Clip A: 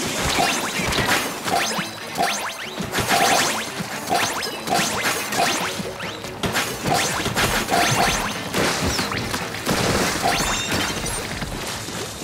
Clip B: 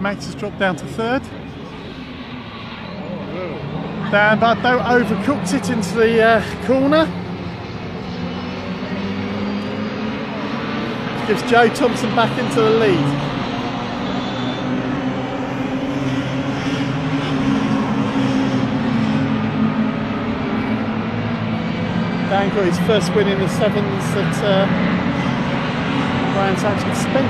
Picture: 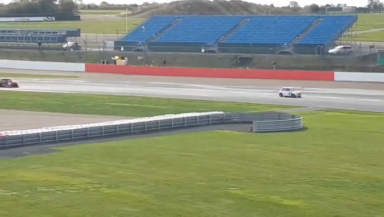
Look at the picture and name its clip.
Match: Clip B